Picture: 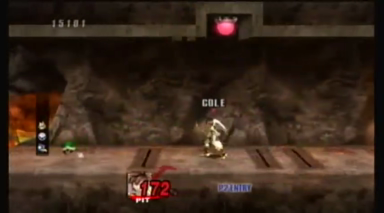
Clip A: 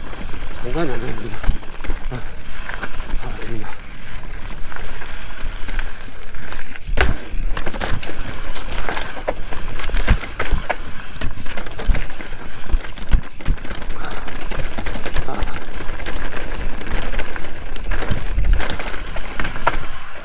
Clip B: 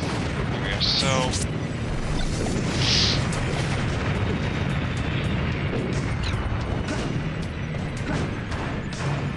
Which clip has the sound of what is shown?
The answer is B